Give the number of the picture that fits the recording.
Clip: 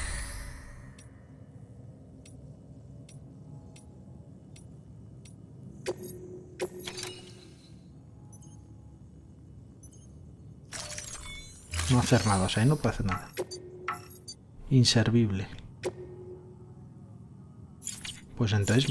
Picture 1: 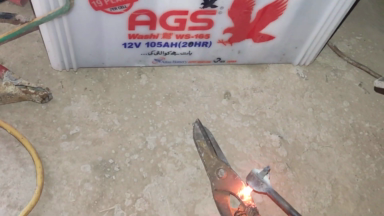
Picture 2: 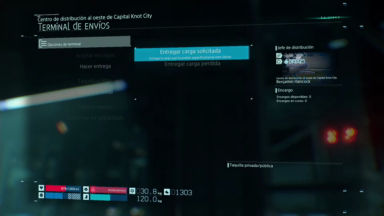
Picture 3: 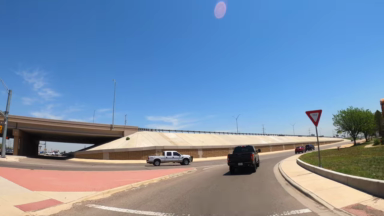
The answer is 2